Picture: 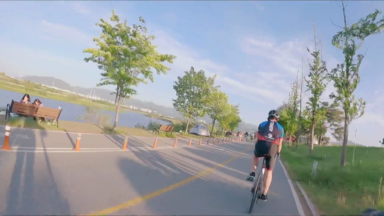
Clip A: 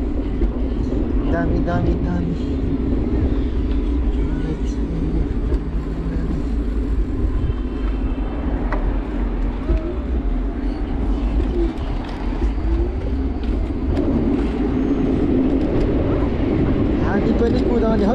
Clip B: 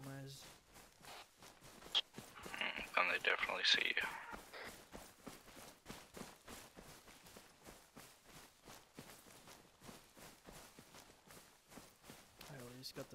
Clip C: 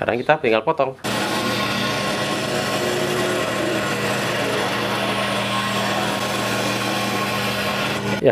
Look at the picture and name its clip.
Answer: A